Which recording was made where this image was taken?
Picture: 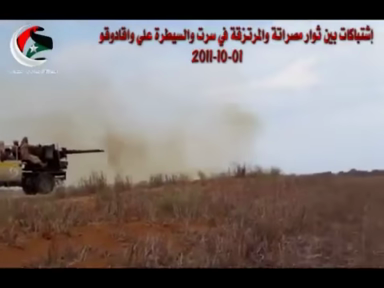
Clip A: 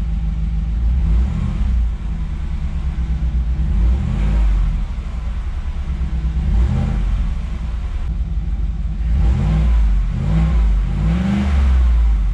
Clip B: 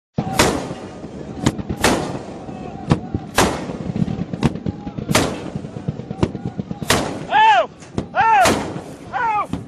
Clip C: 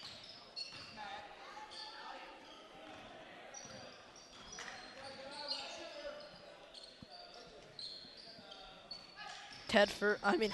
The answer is B